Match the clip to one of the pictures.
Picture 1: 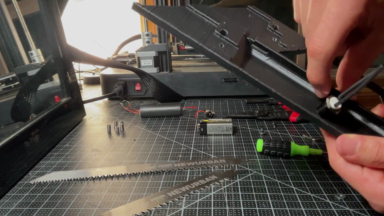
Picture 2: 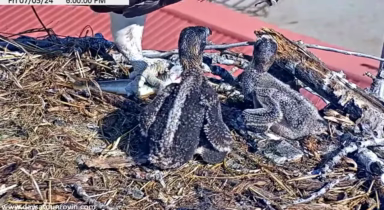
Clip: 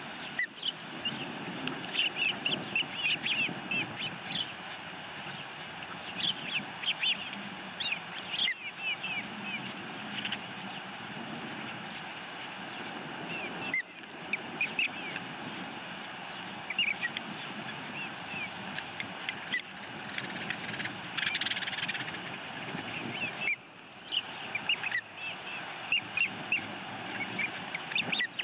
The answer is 2